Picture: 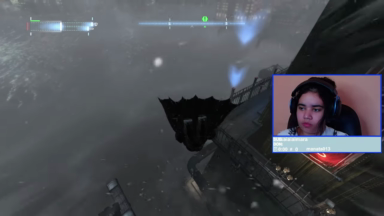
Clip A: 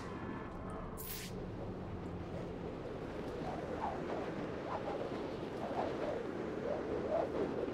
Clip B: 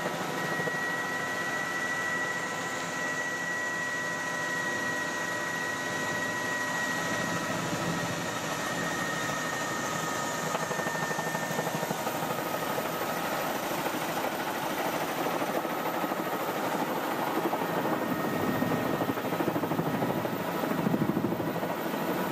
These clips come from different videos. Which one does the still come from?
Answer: A